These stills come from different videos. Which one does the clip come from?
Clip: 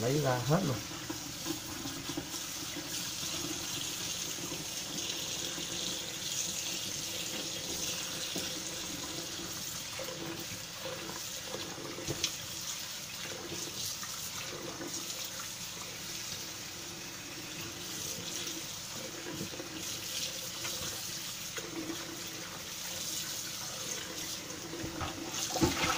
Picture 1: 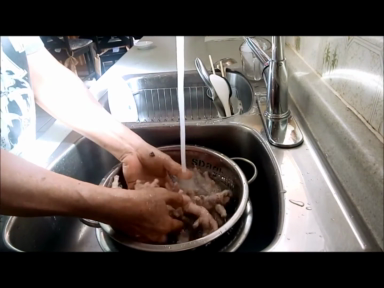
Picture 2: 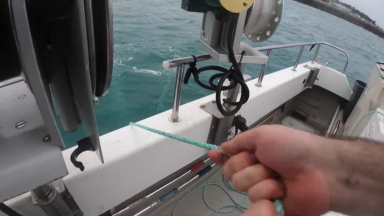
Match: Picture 1